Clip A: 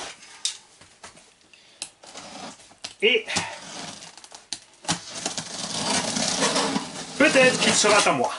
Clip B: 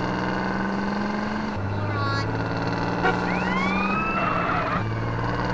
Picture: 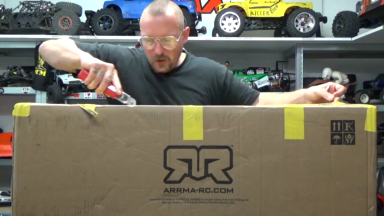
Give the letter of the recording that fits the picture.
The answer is A